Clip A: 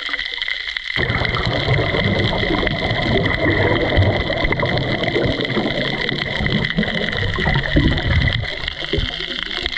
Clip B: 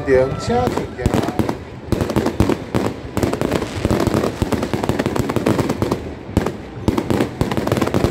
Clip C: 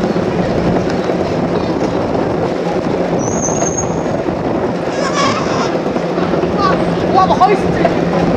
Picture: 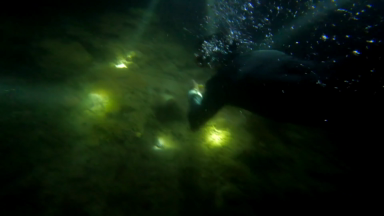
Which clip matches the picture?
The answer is A